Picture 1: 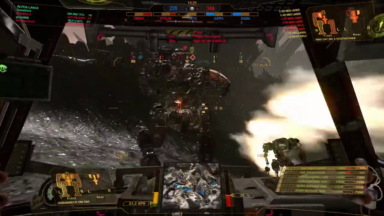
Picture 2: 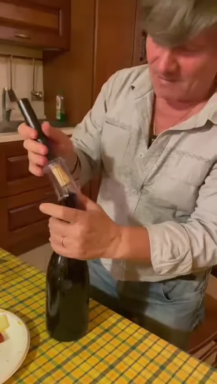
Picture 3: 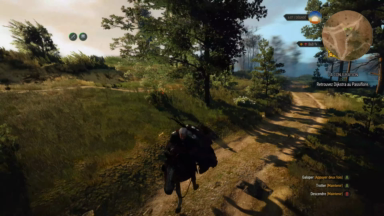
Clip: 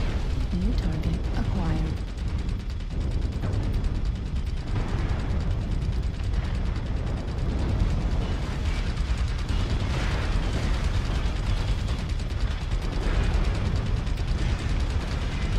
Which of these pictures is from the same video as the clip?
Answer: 1